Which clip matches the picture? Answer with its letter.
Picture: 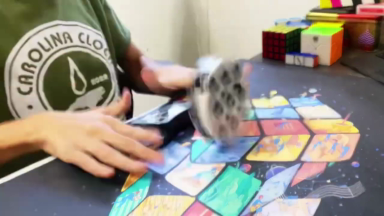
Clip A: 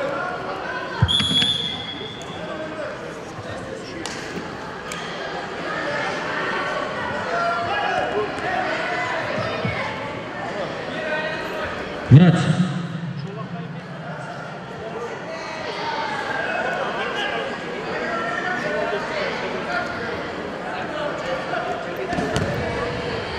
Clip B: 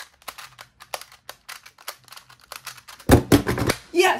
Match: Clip B